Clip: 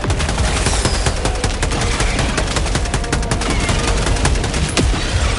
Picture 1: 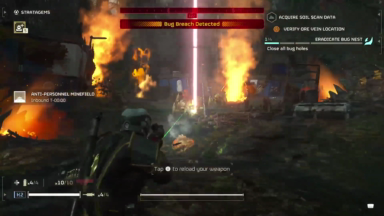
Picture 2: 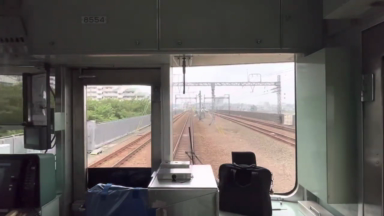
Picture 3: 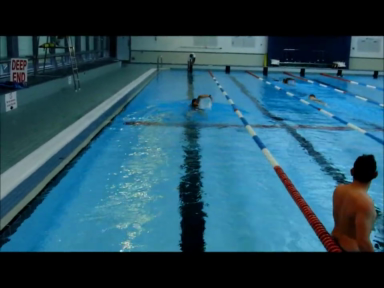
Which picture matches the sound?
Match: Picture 1